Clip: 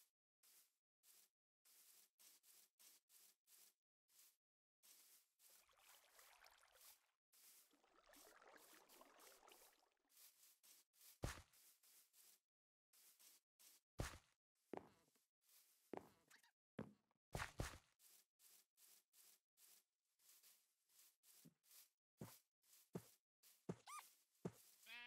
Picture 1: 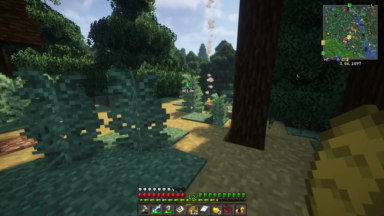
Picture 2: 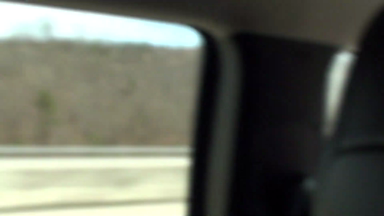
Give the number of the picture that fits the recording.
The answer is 1